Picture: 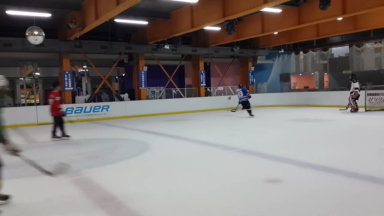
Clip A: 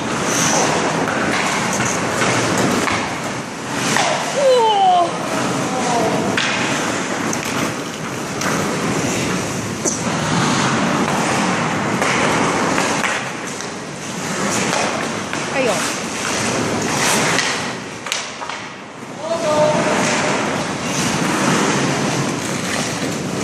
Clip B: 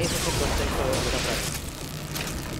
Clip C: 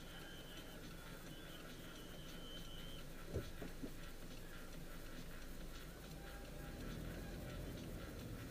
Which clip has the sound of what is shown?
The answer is A